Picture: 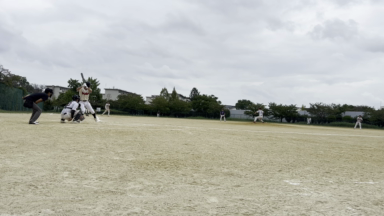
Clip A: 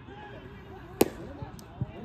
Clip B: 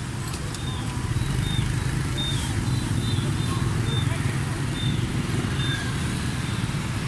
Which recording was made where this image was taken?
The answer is A